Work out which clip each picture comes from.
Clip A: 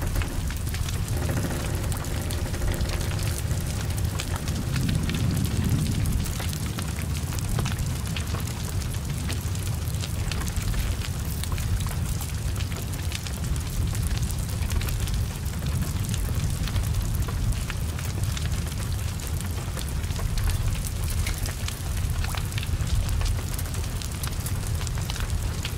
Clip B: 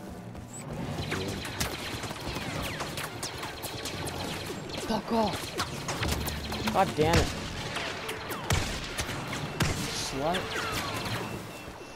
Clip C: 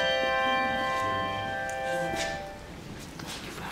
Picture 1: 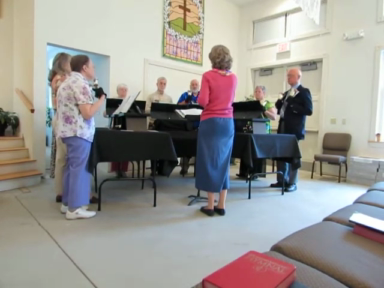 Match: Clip C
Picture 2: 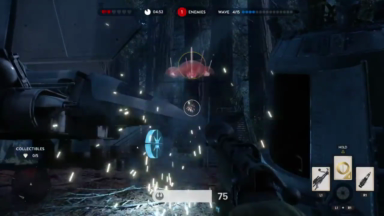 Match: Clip B